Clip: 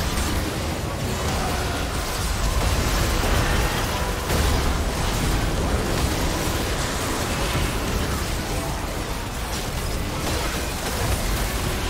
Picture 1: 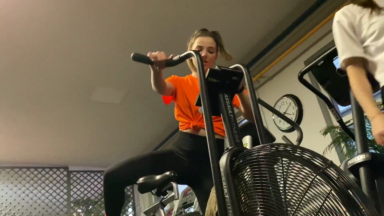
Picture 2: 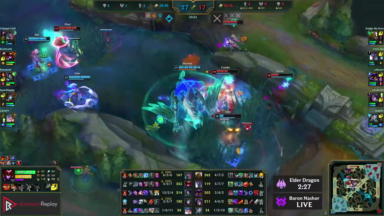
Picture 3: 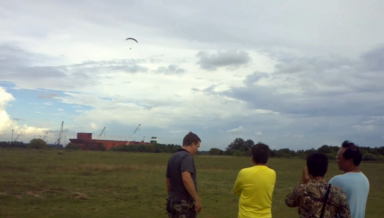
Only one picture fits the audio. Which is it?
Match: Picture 2